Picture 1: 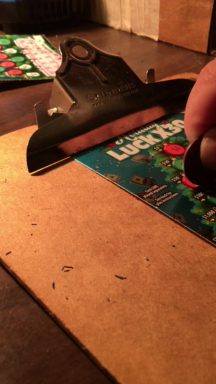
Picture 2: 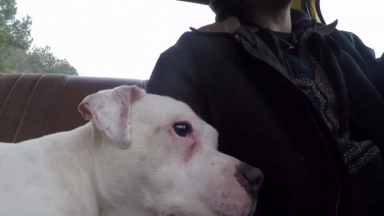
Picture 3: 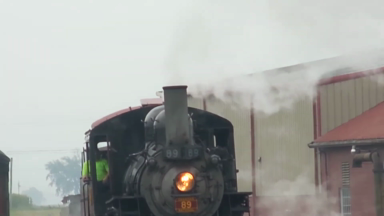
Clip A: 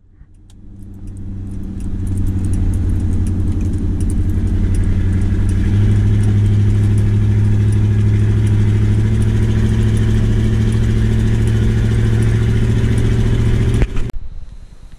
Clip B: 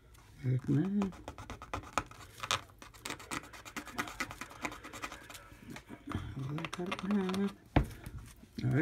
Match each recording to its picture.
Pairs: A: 2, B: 1